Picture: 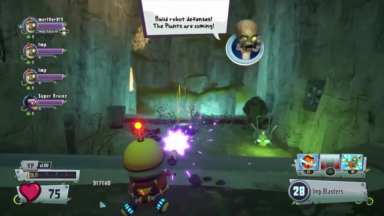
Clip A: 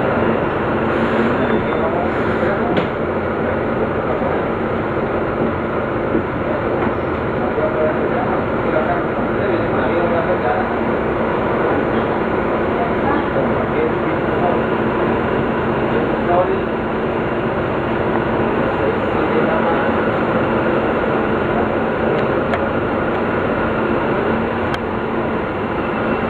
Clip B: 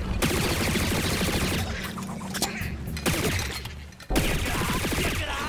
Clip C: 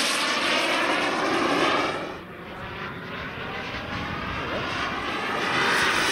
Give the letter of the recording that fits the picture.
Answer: B